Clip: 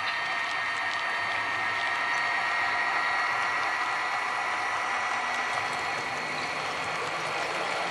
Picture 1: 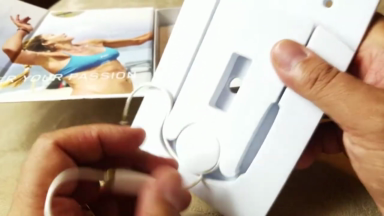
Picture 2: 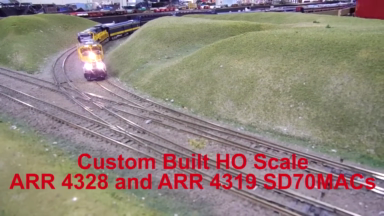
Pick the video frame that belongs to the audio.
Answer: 2